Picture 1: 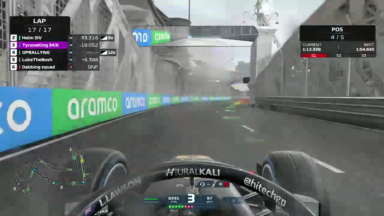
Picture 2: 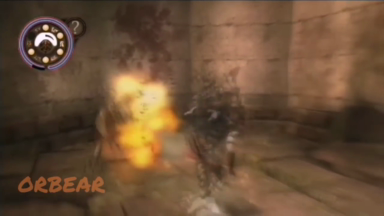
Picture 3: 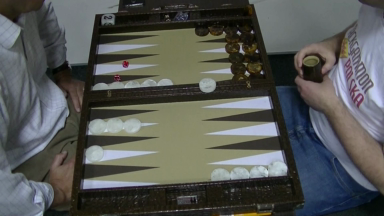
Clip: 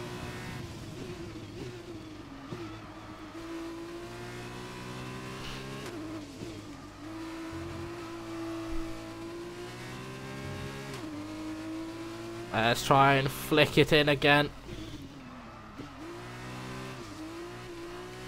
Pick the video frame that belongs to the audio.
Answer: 1